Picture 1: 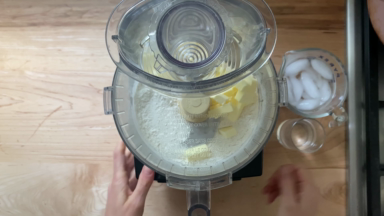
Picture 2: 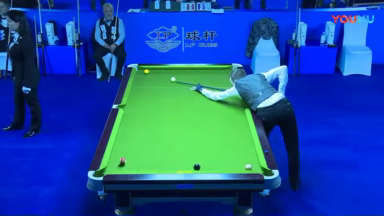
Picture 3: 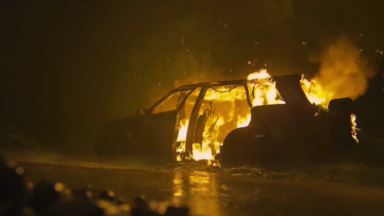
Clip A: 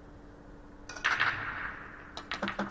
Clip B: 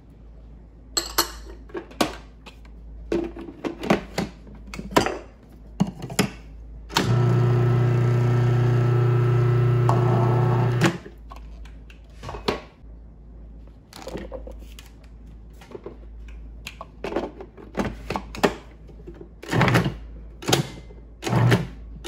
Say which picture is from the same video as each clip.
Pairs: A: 2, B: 1